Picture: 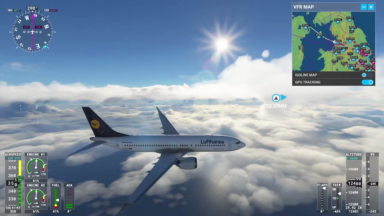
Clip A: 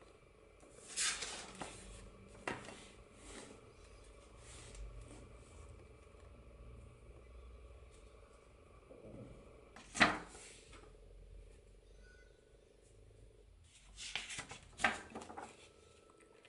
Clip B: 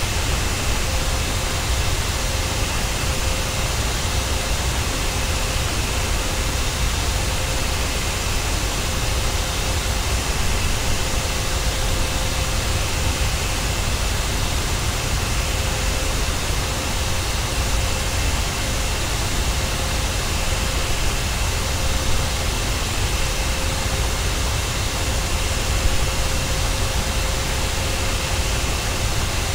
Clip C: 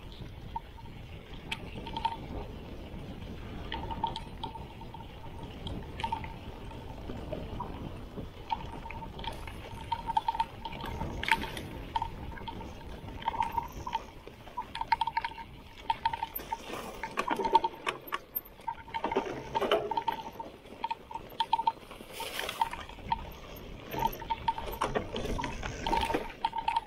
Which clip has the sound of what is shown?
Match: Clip B